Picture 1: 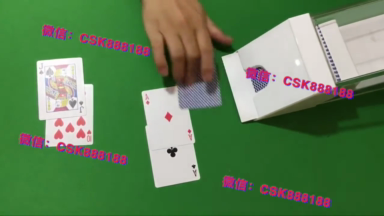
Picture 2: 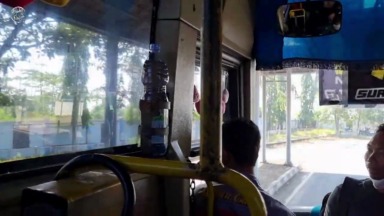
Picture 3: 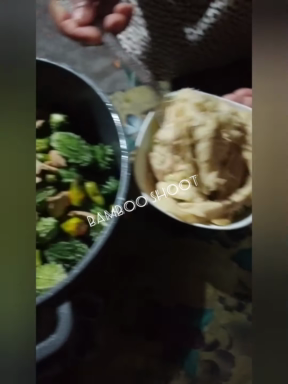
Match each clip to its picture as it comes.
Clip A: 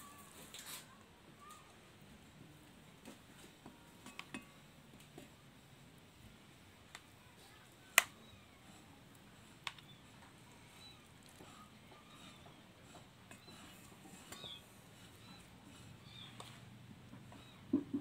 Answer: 3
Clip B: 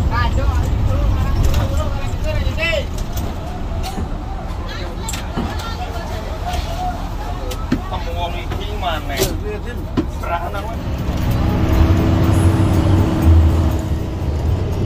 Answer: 2